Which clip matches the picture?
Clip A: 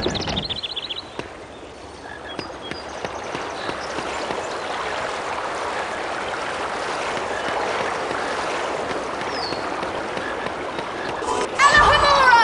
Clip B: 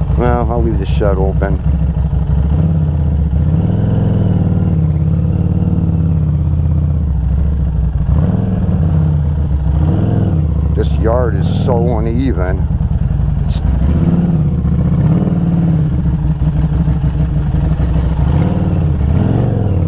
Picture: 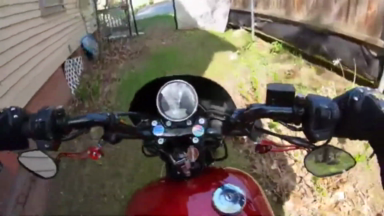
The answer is B